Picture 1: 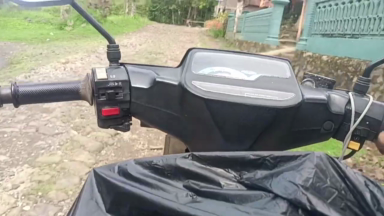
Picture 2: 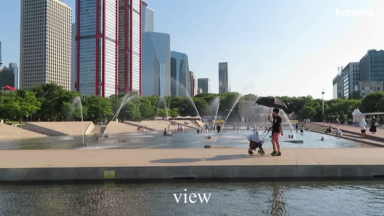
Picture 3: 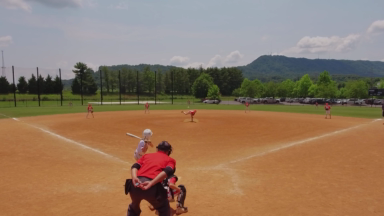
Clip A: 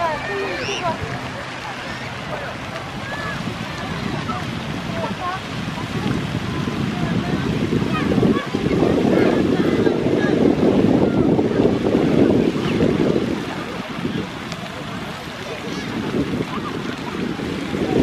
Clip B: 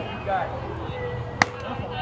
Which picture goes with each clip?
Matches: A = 2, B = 3